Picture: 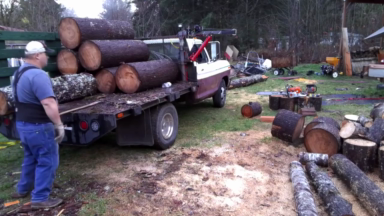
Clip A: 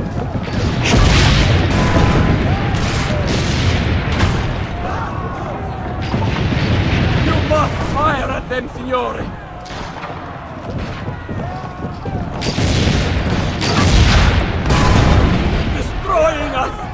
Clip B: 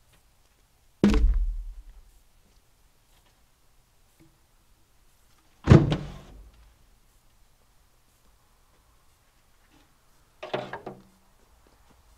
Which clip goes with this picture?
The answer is B